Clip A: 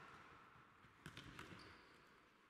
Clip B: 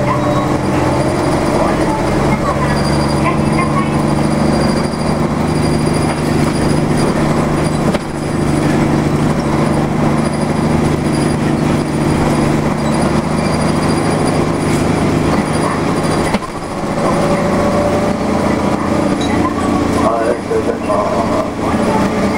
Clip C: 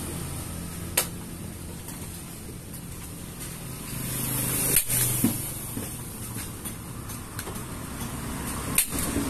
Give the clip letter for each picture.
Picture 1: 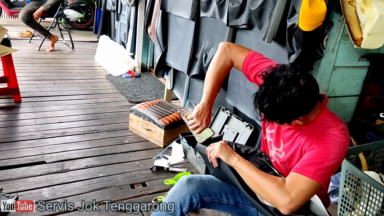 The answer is C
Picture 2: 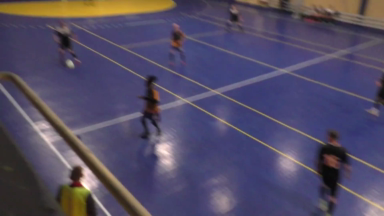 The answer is A